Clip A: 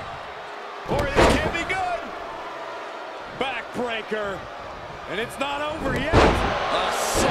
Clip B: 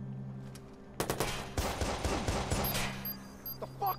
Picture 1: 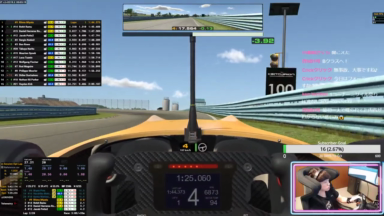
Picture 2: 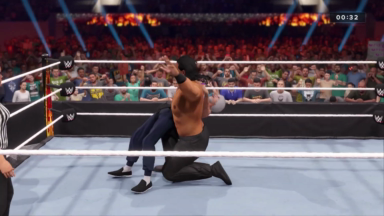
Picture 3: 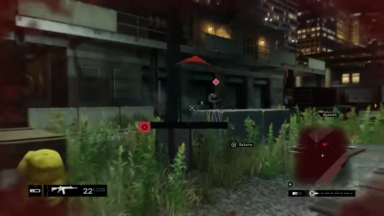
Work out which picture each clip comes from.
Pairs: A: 2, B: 3